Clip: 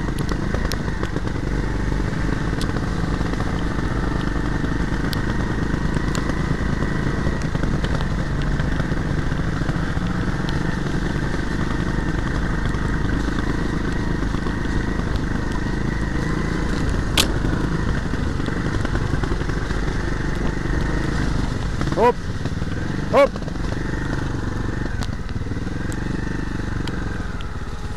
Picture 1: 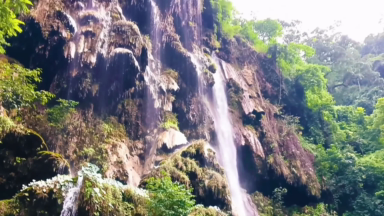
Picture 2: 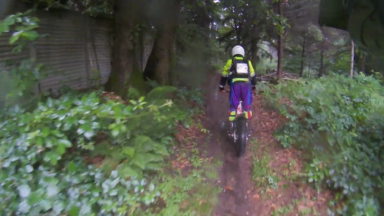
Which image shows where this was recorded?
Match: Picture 2